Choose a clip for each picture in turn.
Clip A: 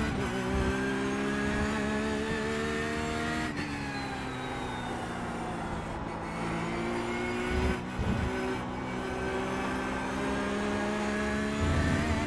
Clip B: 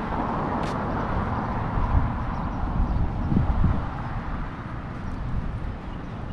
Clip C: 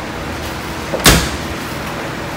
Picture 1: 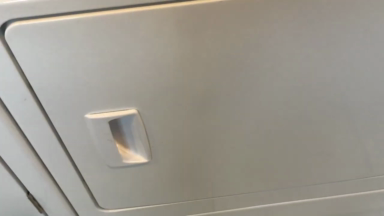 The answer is C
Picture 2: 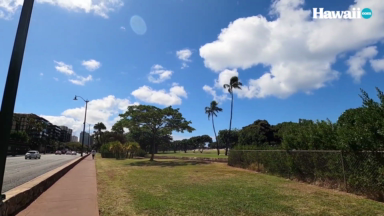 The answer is B